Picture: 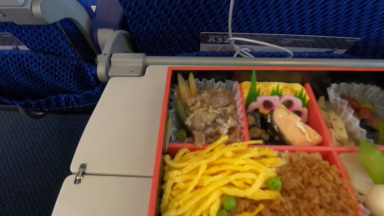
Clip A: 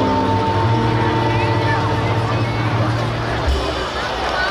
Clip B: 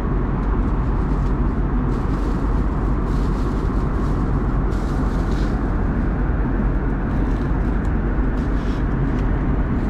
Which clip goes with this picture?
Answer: B